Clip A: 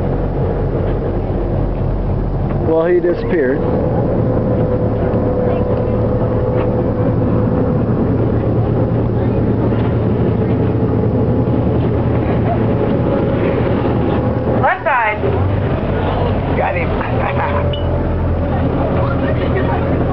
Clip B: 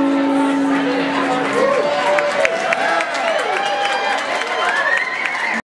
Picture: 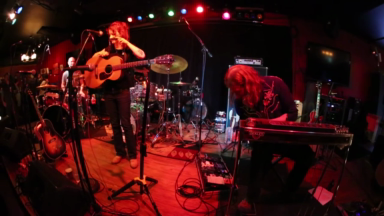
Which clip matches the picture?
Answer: B